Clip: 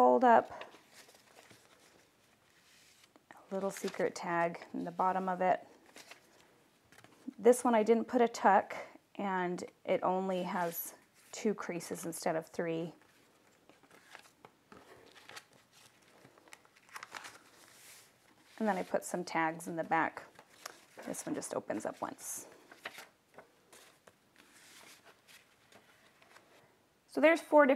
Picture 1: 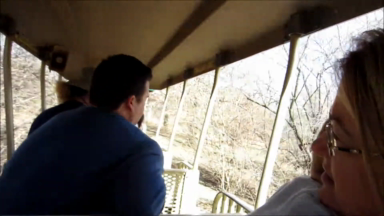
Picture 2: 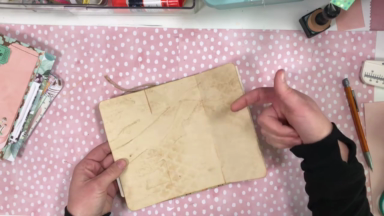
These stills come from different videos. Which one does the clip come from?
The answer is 2